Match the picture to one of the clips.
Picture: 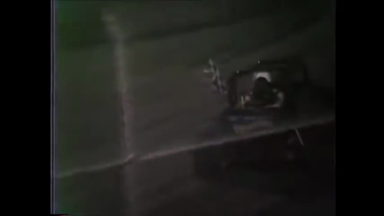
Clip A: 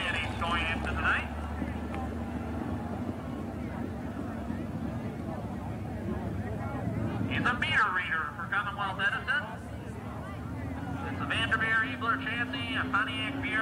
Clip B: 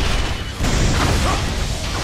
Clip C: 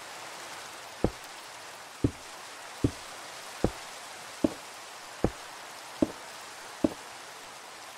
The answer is A